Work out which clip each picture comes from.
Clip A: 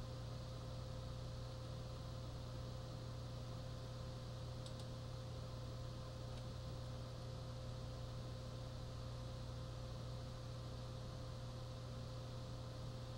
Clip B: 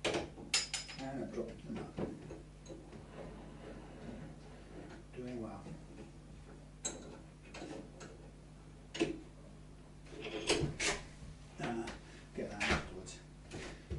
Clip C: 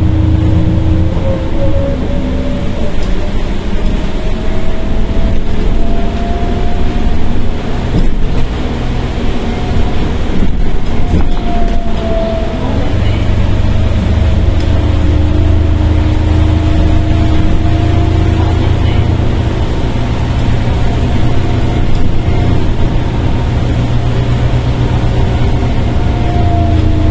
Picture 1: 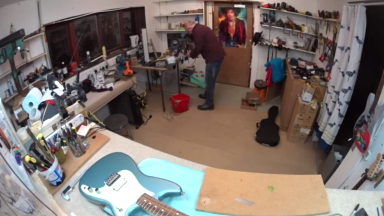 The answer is B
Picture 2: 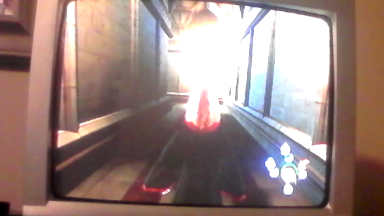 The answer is A